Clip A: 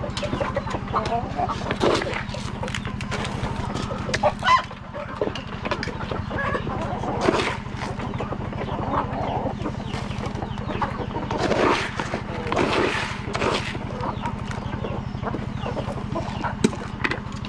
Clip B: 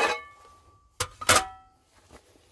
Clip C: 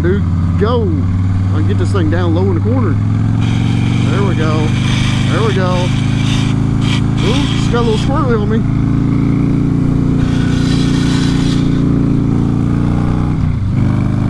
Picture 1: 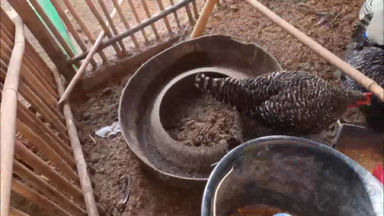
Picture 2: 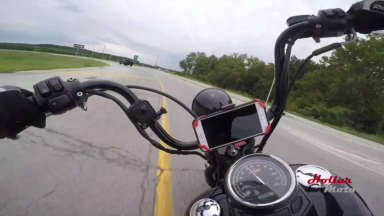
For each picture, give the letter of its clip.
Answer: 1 A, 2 C